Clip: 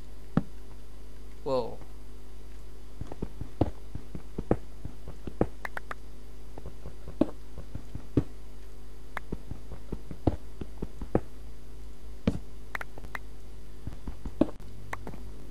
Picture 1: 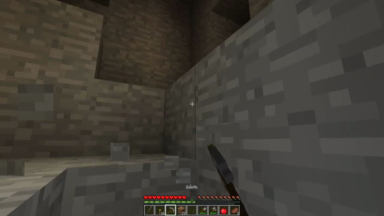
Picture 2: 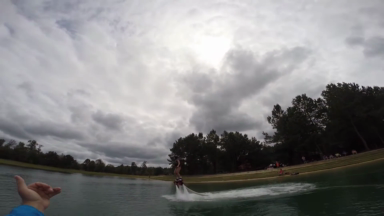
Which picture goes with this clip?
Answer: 1